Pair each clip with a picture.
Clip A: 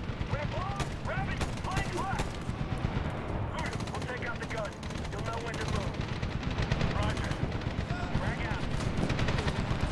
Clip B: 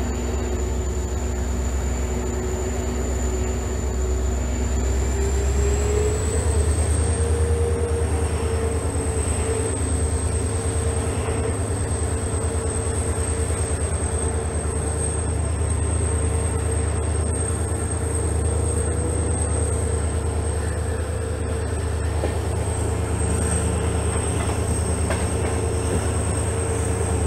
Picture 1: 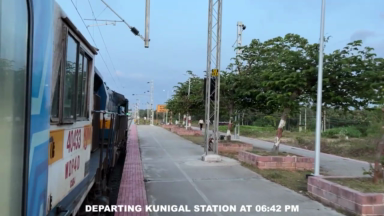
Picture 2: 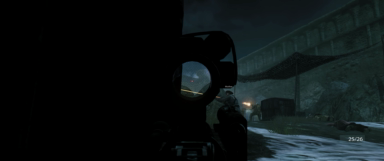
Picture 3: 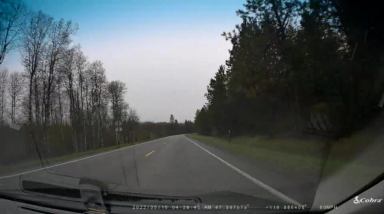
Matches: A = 2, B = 1